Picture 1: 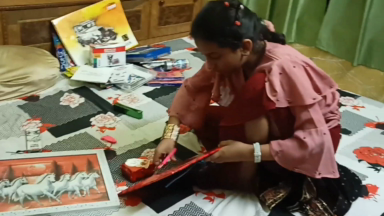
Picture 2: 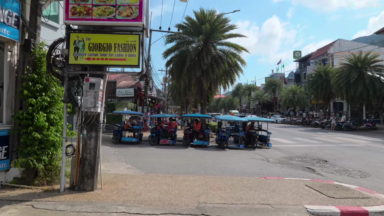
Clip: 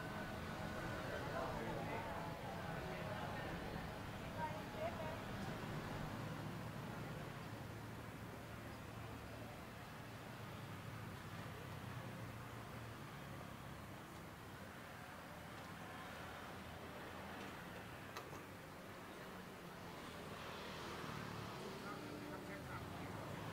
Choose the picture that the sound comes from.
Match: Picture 2